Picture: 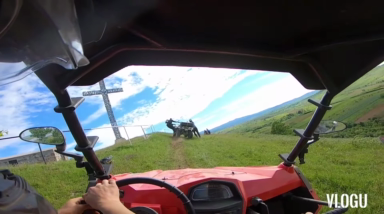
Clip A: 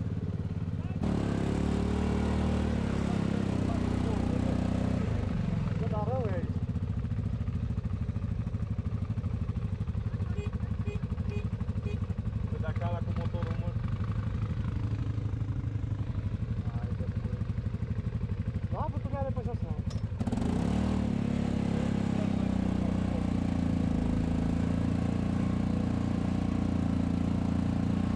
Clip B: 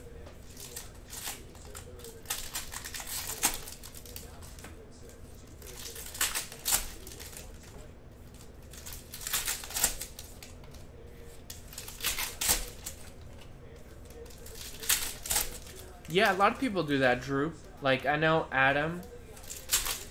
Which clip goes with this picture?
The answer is A